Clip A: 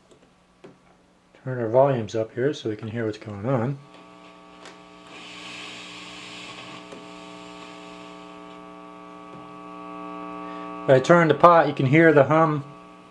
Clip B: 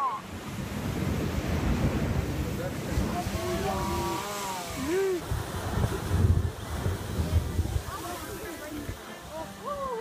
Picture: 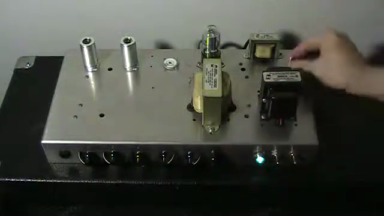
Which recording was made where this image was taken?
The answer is A